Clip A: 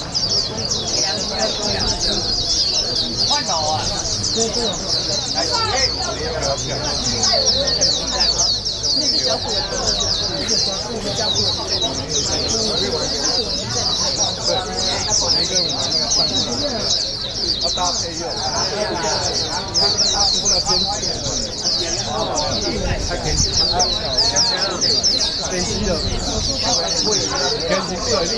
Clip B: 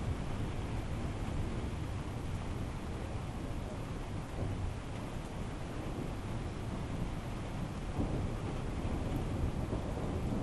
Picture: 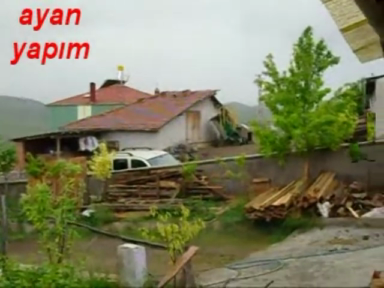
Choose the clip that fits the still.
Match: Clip B